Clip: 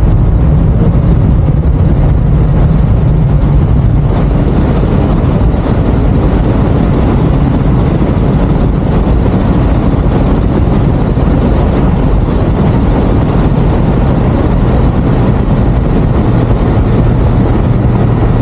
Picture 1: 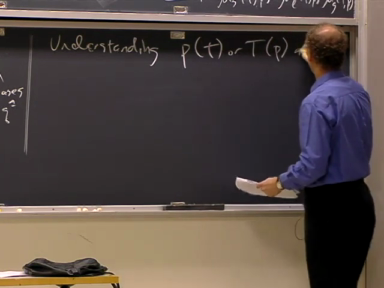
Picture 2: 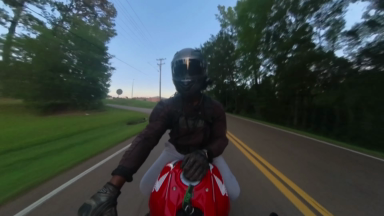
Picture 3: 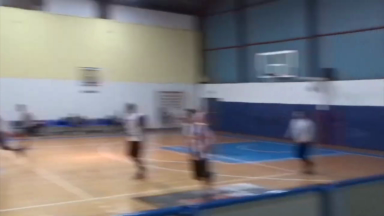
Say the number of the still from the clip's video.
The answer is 2